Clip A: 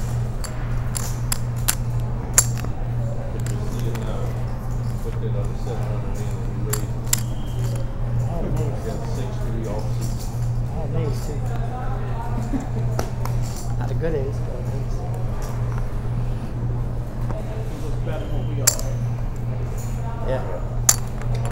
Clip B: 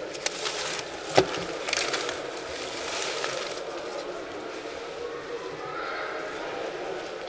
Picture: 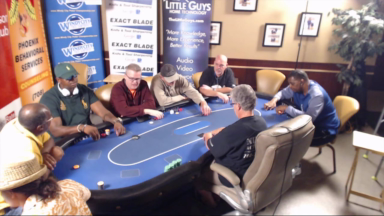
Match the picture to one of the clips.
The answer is A